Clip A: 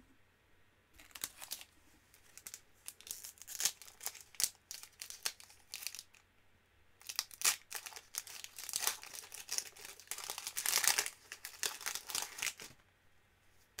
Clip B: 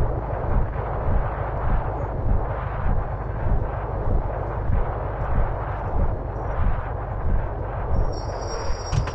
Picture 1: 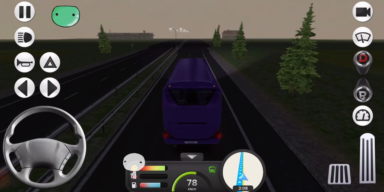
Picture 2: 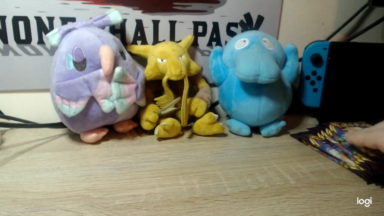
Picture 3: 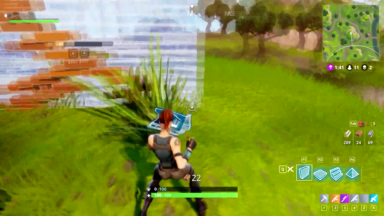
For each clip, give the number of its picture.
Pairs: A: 2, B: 1